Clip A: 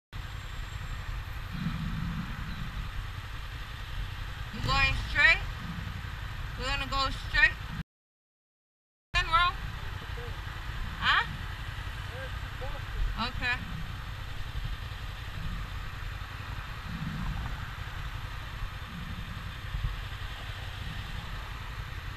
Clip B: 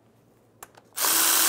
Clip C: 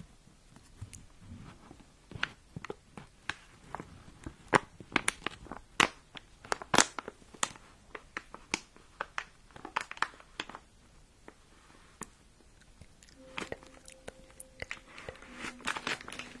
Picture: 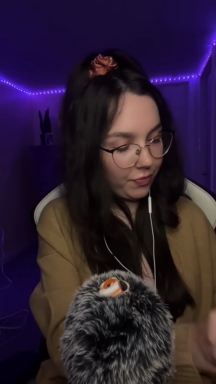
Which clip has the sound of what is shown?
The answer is C